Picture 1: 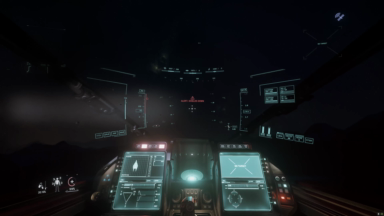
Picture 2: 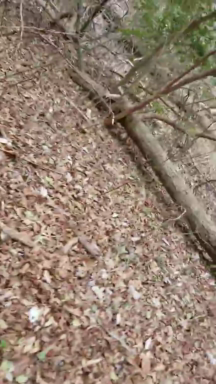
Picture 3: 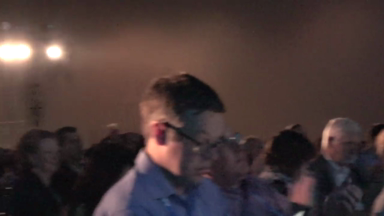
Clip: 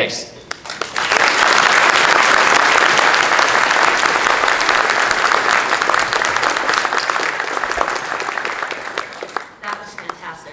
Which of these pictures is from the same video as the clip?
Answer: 3